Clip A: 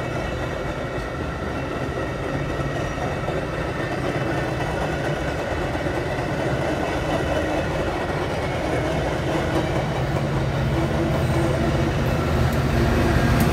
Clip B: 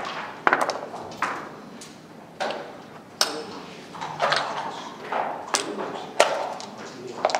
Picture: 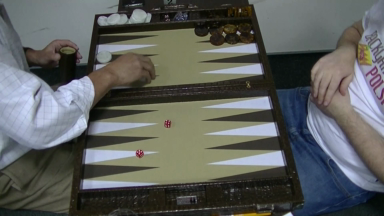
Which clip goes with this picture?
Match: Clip B